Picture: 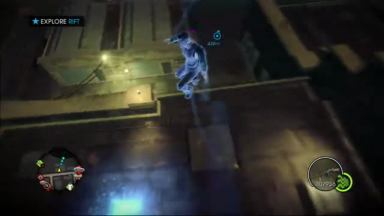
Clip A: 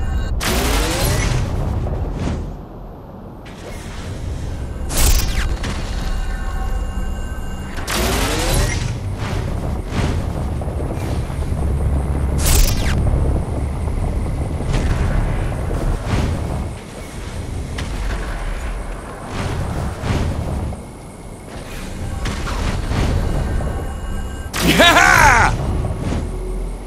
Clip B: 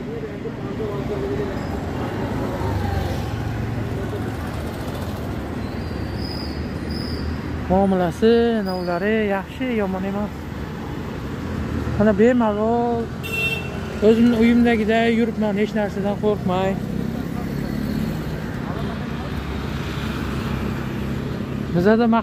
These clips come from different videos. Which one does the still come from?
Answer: A